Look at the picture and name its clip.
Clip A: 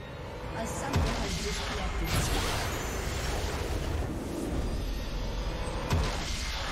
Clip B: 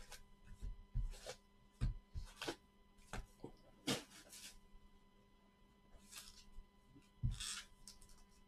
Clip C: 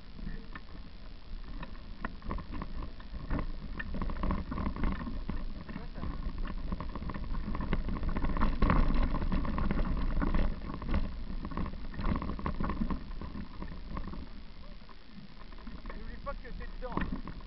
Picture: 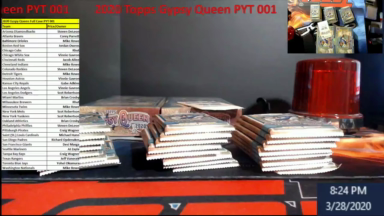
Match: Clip B